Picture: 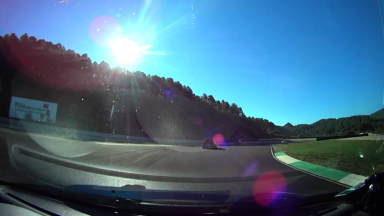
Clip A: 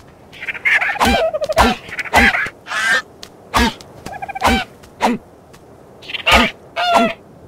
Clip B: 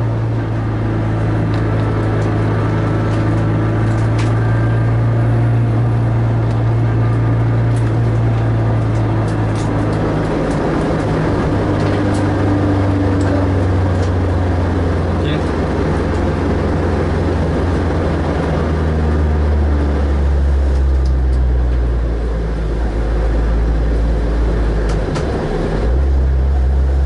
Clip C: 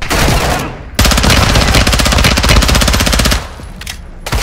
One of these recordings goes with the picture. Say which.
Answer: B